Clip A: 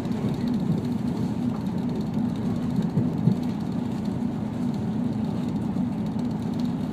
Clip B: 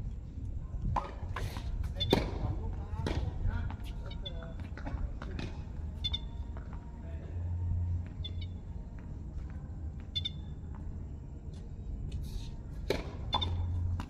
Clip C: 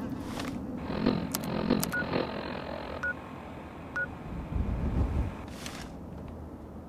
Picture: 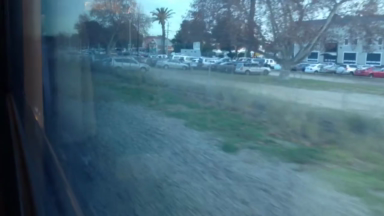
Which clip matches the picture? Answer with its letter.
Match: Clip A